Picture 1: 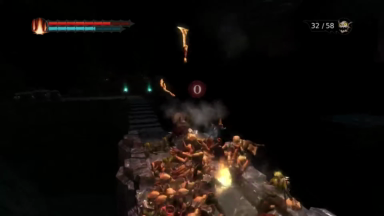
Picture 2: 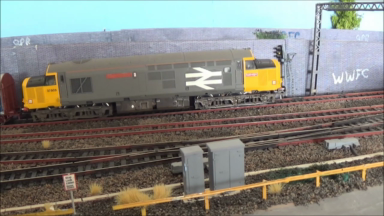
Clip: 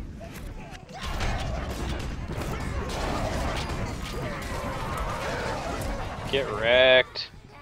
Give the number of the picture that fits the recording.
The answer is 1